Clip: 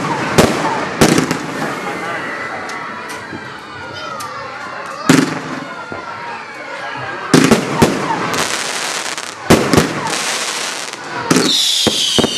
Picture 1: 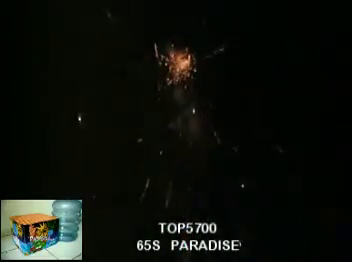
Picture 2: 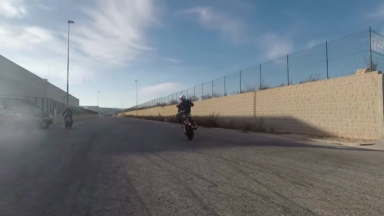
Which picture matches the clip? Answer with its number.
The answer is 1